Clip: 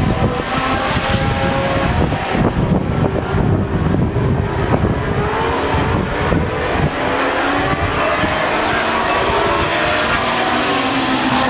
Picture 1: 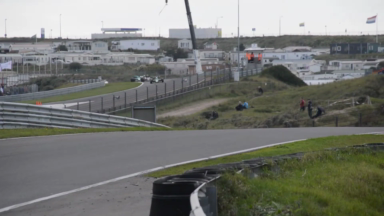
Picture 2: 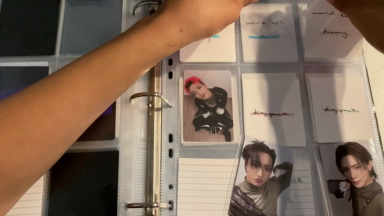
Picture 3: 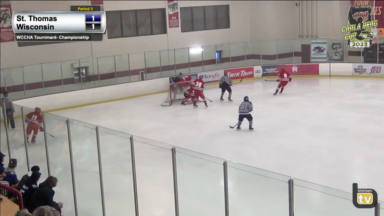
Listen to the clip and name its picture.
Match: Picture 1